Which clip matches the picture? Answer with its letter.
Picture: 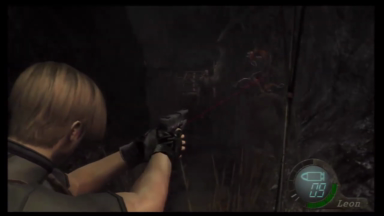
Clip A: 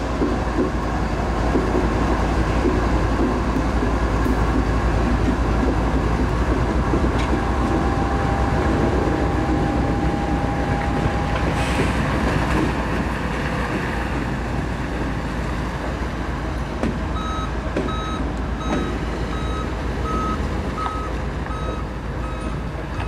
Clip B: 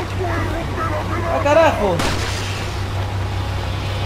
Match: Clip B